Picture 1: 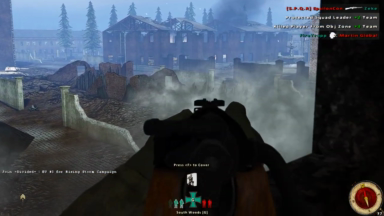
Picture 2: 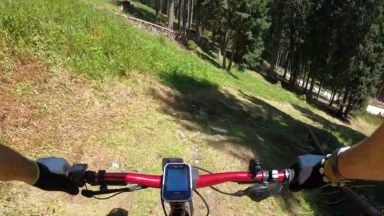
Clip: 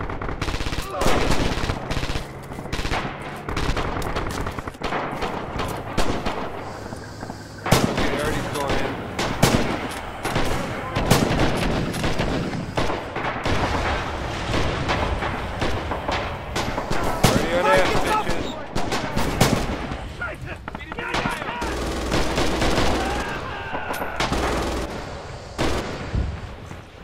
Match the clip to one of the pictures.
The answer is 1